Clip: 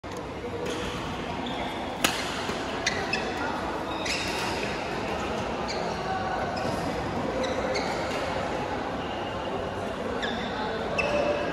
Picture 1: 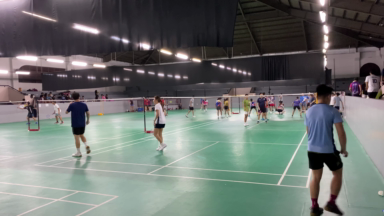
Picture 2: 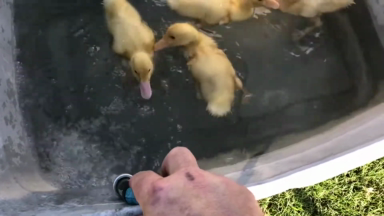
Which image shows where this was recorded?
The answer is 1